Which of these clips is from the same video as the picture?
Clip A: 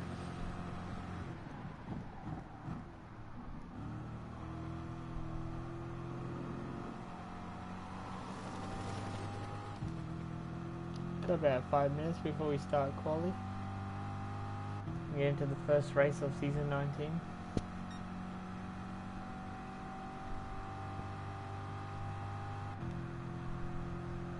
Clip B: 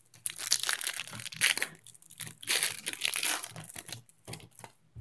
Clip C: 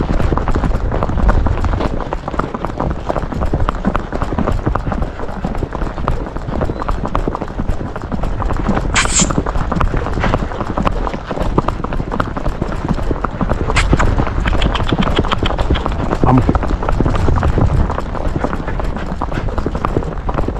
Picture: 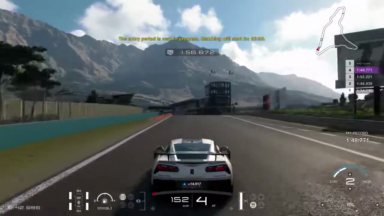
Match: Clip A